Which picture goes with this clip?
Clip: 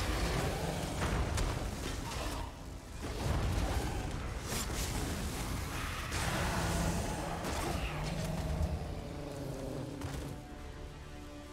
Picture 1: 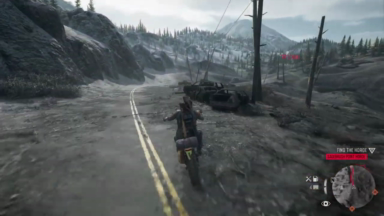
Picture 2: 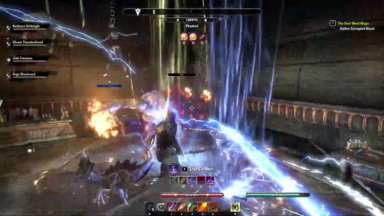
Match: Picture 2